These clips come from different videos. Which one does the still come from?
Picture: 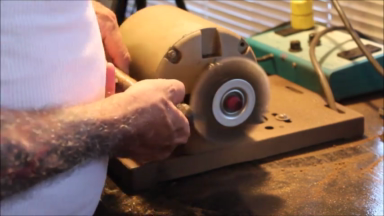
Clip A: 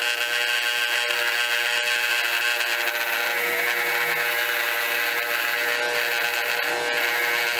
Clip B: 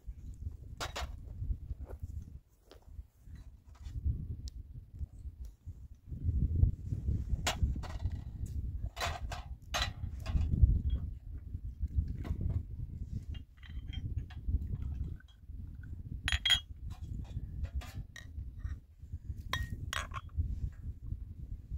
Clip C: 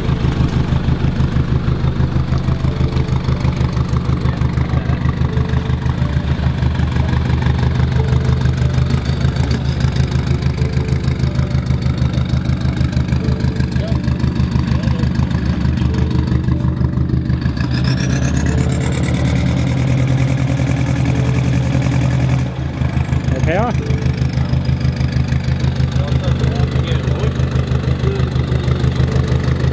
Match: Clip A